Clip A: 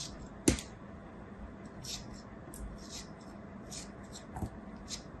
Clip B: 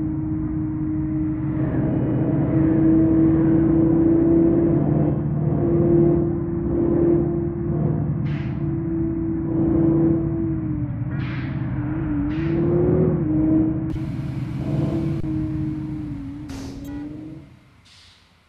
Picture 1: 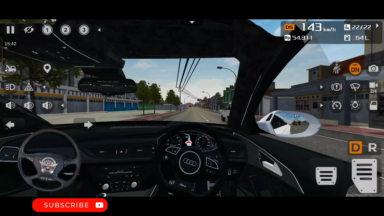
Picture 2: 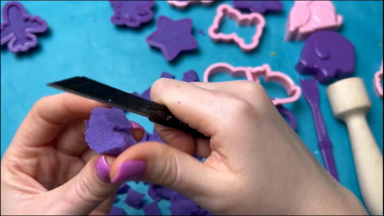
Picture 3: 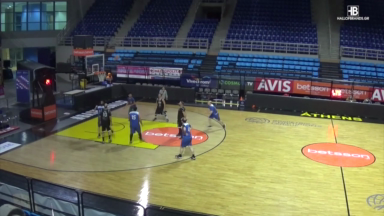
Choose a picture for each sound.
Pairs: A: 2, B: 1